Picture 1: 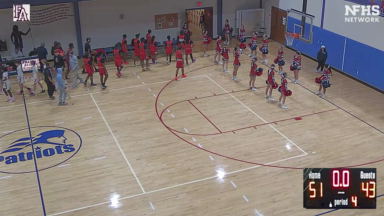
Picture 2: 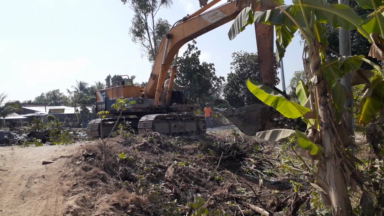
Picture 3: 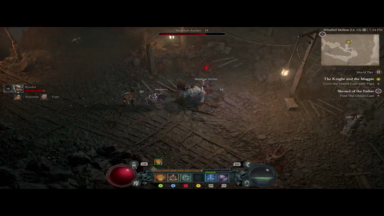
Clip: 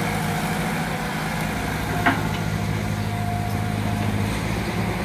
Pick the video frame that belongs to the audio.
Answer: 2